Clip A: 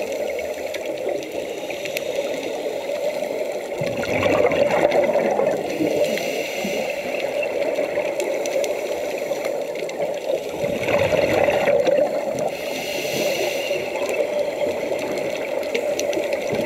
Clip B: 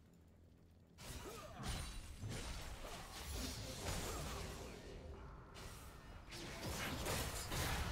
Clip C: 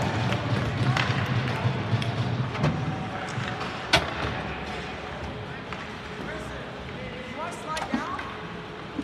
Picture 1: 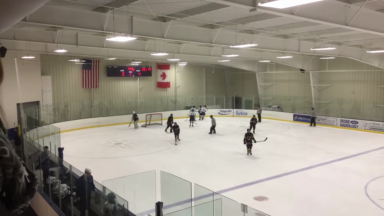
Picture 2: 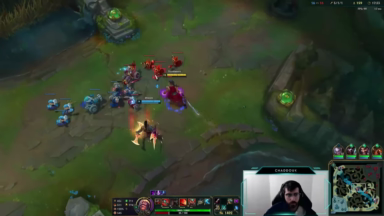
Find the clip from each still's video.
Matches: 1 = C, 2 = B